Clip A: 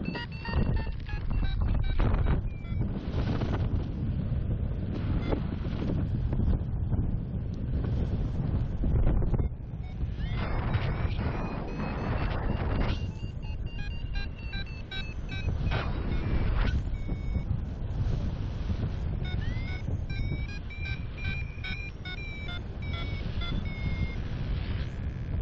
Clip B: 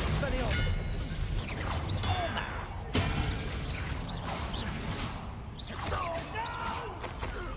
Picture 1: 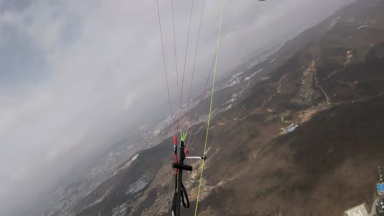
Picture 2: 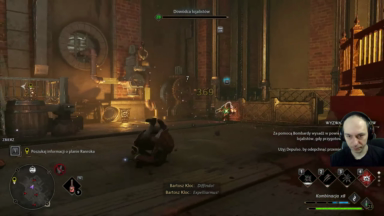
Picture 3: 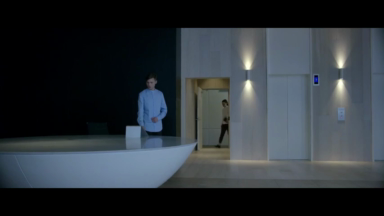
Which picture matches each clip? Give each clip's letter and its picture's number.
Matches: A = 1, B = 2